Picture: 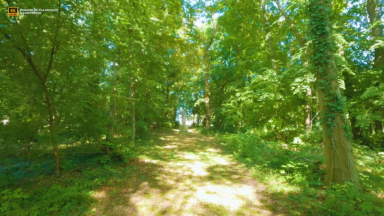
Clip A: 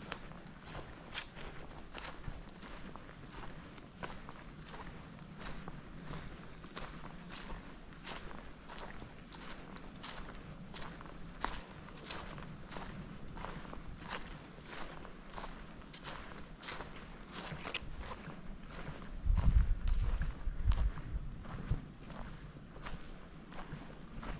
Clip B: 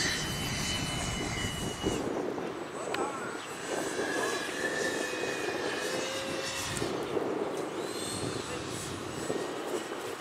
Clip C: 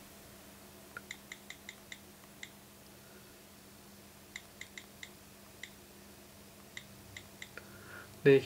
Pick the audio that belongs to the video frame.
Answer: A